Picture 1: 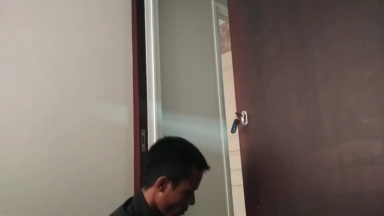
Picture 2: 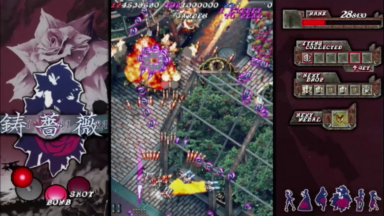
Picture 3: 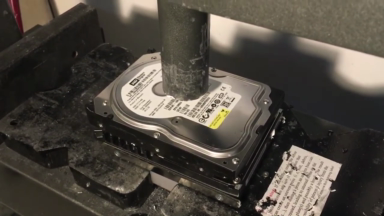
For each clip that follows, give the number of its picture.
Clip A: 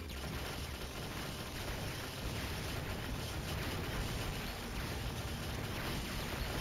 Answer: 2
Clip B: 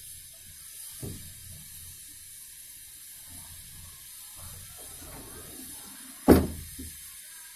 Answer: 1